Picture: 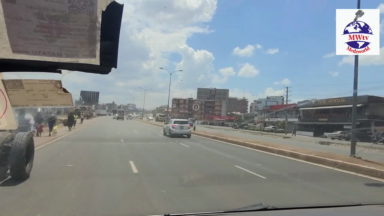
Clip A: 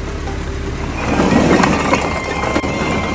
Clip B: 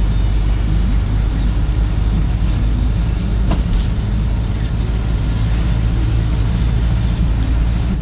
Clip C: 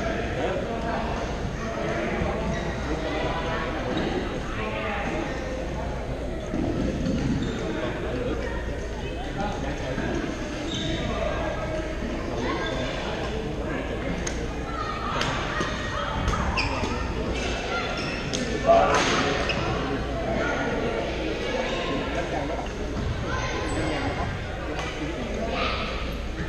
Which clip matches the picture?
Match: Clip B